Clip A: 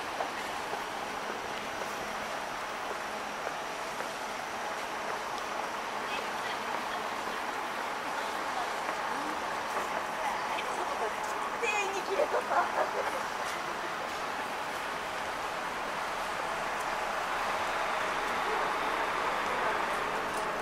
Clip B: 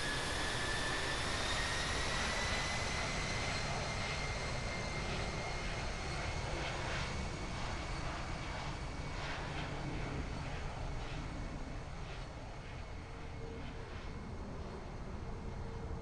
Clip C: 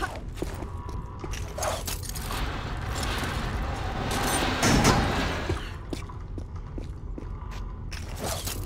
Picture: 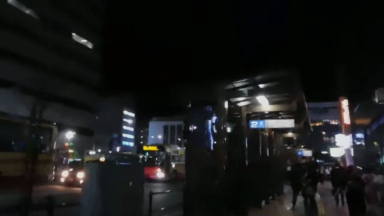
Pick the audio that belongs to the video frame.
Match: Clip A